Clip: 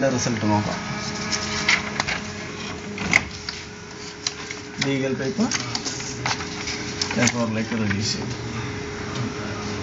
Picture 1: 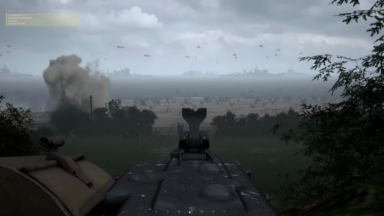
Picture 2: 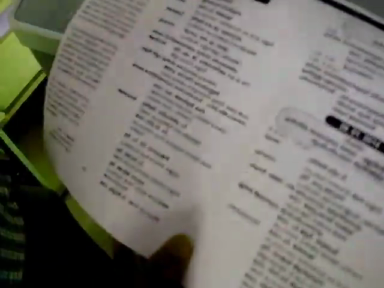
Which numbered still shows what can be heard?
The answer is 2